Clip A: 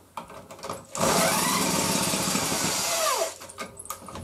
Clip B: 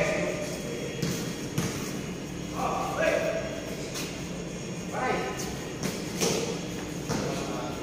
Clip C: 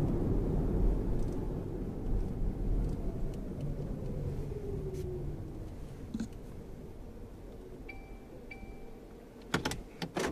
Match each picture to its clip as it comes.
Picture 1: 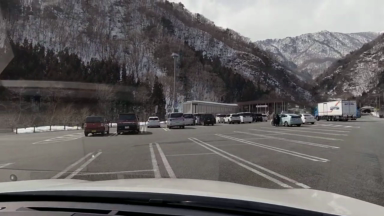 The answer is C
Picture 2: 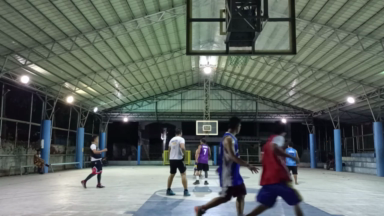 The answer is B